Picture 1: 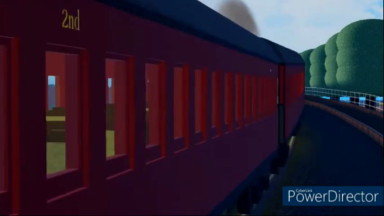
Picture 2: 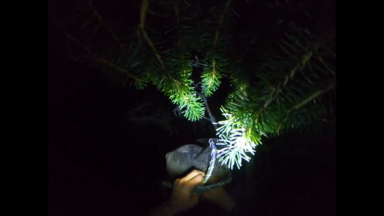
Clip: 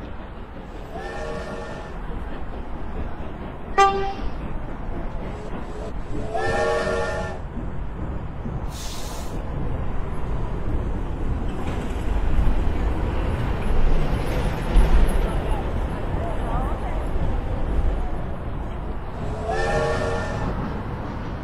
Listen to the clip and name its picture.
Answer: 1